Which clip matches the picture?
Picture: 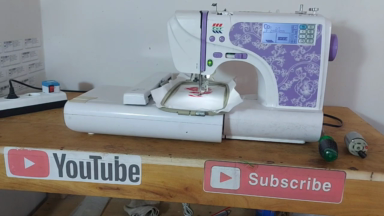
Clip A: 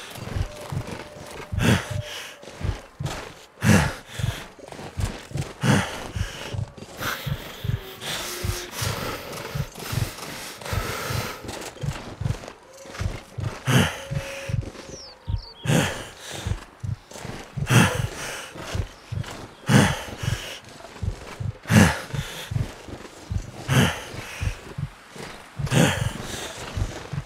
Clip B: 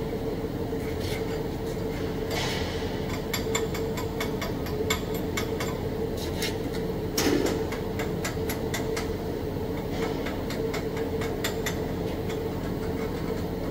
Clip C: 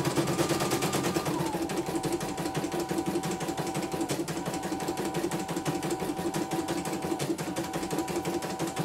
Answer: C